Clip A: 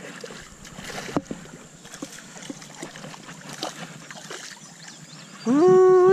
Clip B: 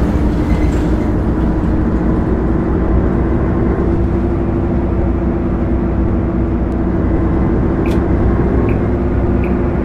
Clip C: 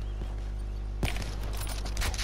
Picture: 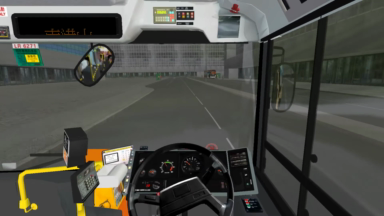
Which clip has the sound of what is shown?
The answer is B